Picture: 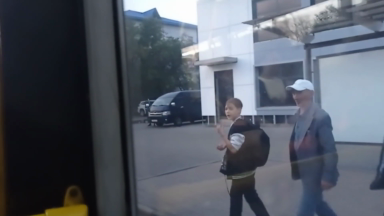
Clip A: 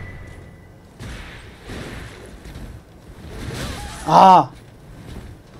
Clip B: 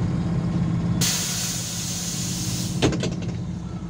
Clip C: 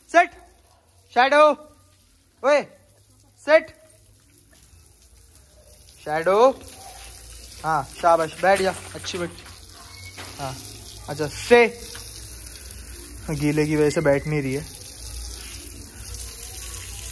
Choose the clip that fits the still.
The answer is B